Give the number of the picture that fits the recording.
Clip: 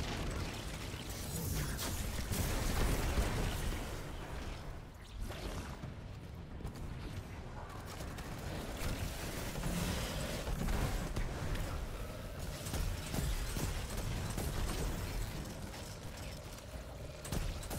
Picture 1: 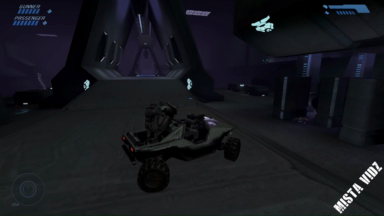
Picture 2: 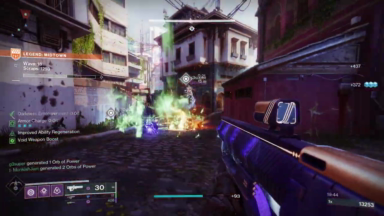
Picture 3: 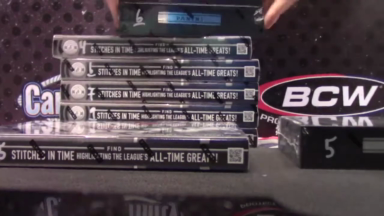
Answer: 2